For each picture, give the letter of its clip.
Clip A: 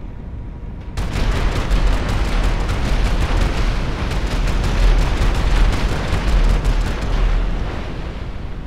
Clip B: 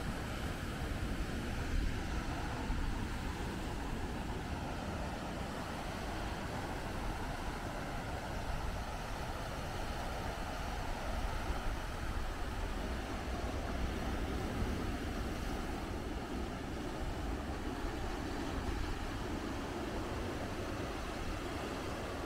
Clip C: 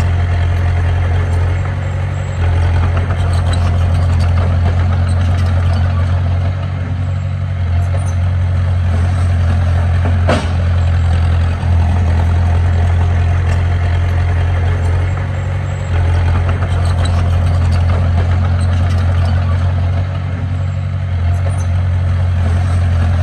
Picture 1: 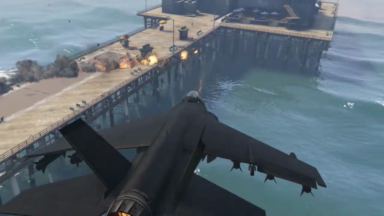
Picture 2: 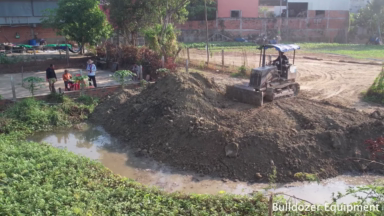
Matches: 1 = A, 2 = C